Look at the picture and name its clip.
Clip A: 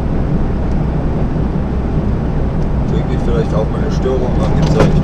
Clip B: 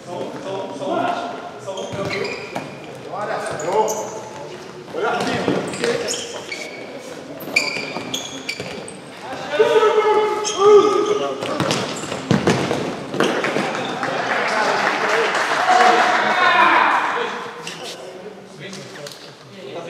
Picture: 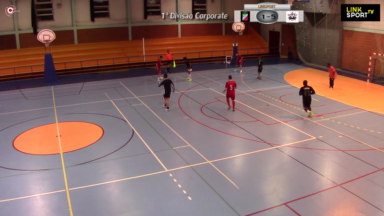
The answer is B